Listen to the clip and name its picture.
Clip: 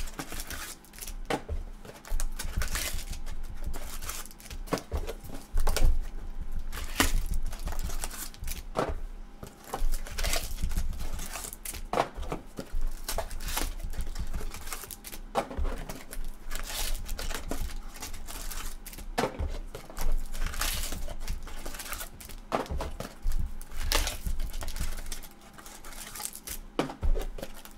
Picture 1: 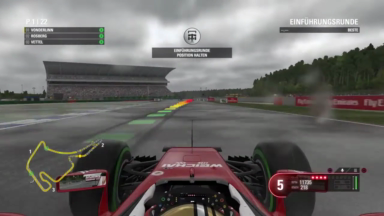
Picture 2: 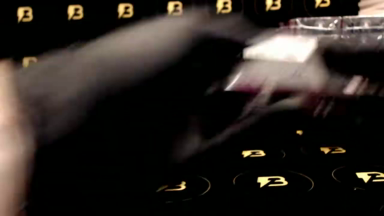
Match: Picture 2